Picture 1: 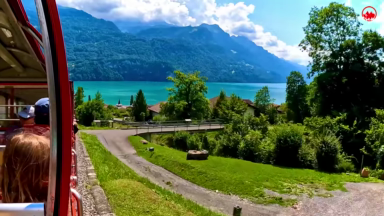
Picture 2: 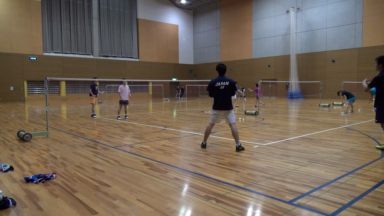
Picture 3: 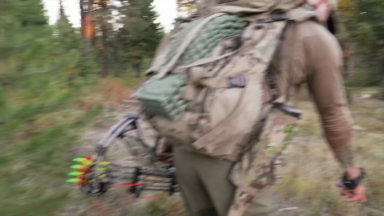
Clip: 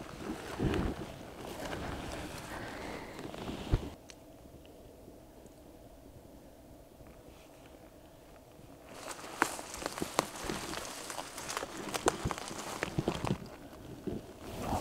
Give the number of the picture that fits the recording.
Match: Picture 3